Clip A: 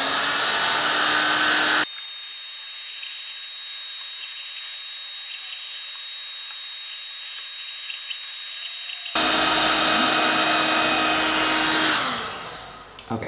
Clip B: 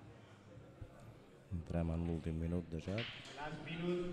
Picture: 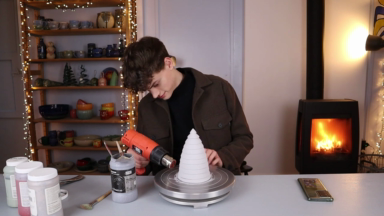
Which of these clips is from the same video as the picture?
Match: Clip A